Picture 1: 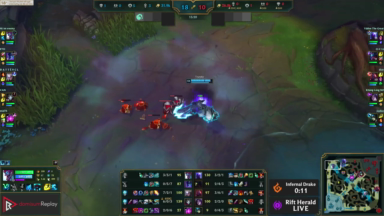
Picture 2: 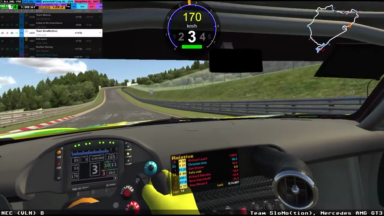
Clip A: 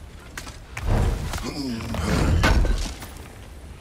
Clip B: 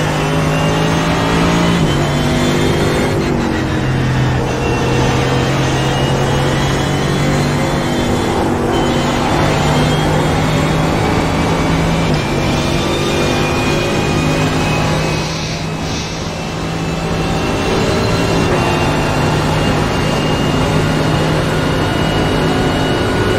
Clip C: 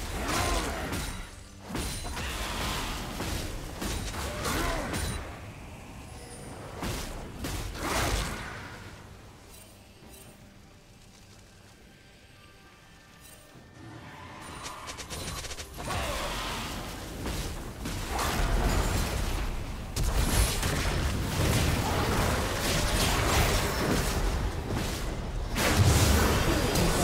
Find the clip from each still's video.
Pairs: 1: C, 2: B